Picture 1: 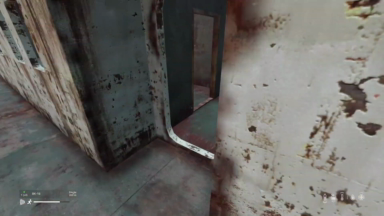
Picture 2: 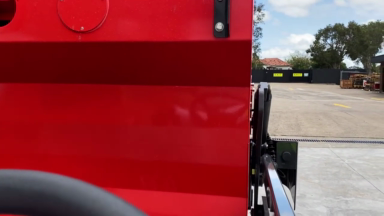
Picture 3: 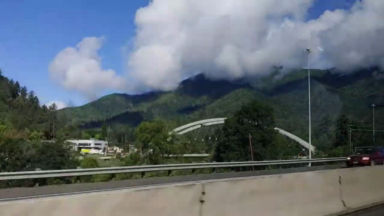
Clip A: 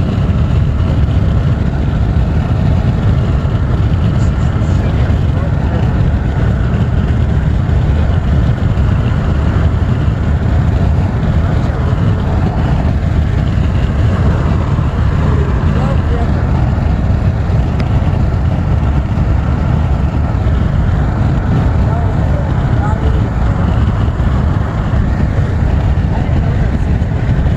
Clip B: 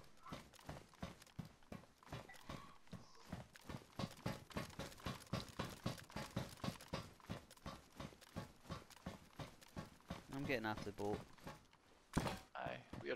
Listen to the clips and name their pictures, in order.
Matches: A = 3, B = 1